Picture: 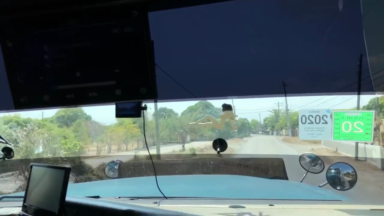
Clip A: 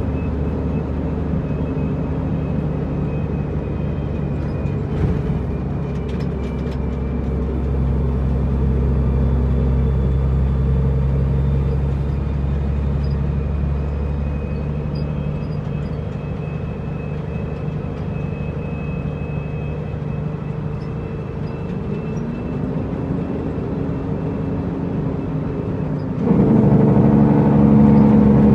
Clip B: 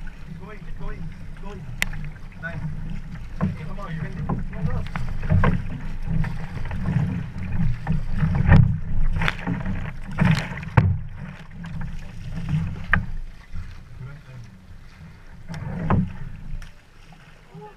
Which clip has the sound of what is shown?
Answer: A